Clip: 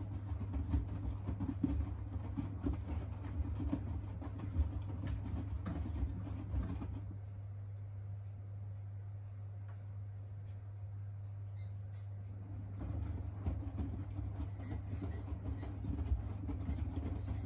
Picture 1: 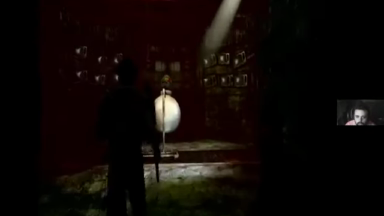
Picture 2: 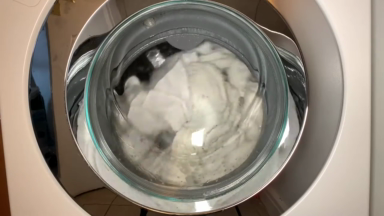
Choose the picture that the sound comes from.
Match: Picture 2